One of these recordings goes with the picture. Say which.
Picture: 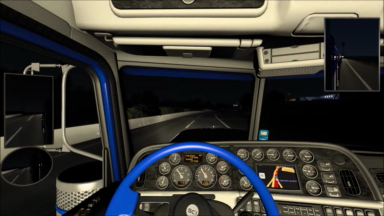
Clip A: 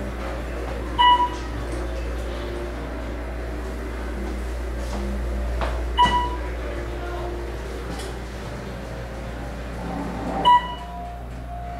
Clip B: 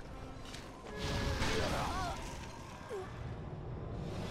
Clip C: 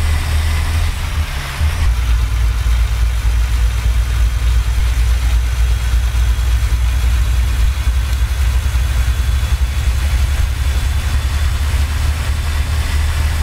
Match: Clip C